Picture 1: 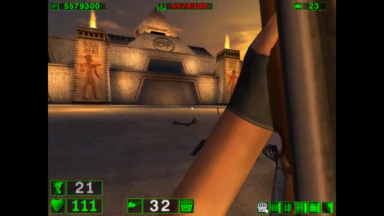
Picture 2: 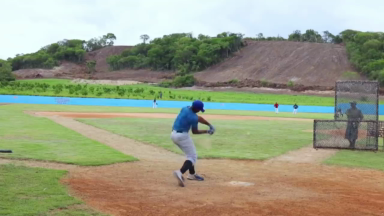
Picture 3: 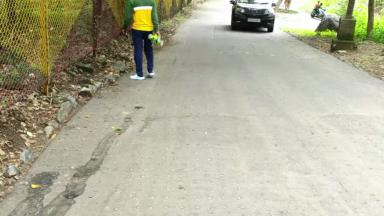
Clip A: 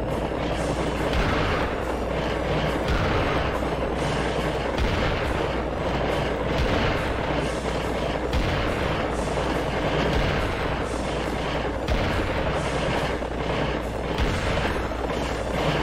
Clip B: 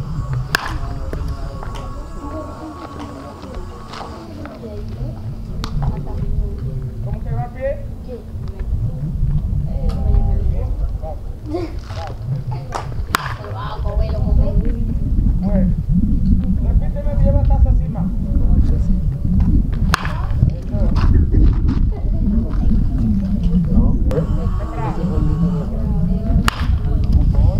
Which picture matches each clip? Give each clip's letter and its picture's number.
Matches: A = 1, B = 2